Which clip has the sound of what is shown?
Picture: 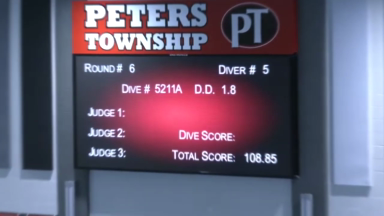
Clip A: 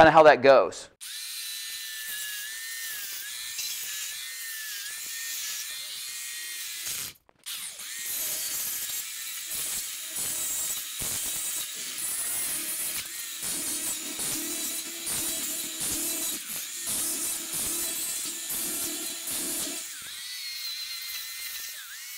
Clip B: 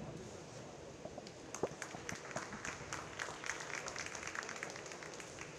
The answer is B